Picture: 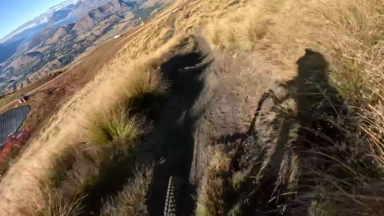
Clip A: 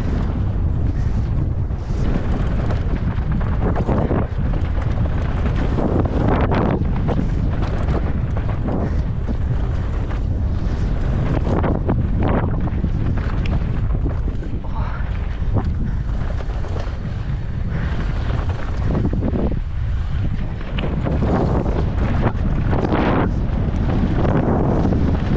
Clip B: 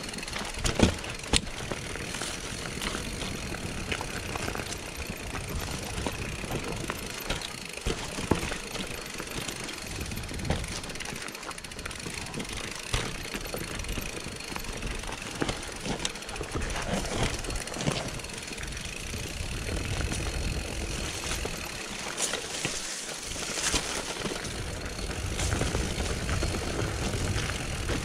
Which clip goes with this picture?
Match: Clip A